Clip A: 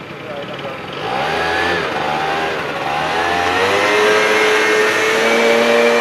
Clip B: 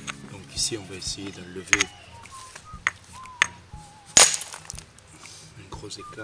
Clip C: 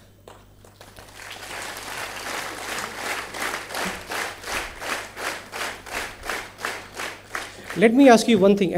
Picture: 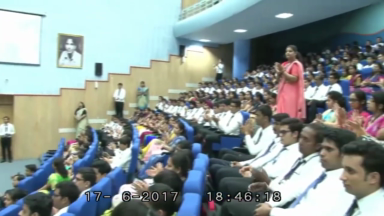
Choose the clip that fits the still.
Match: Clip C